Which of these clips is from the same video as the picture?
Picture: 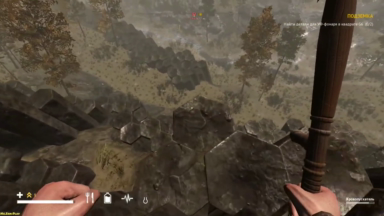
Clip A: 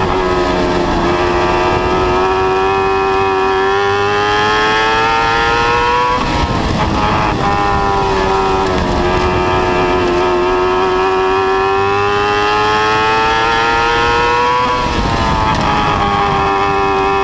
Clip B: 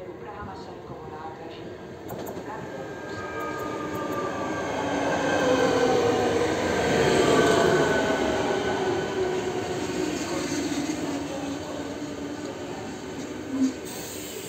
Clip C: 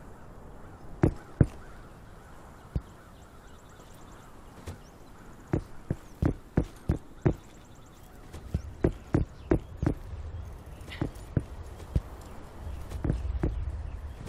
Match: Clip C